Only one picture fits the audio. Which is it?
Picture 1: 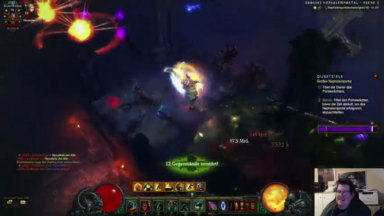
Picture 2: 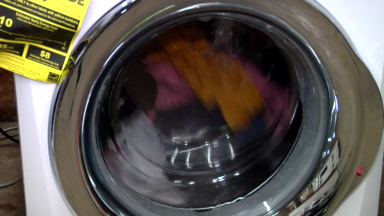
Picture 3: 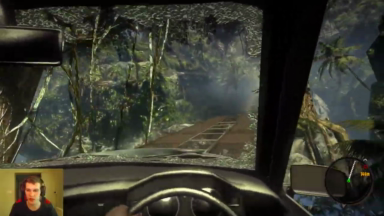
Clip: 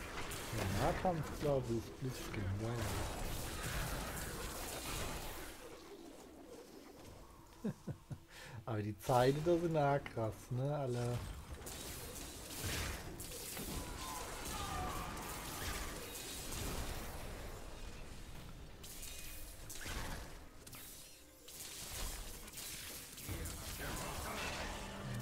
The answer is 1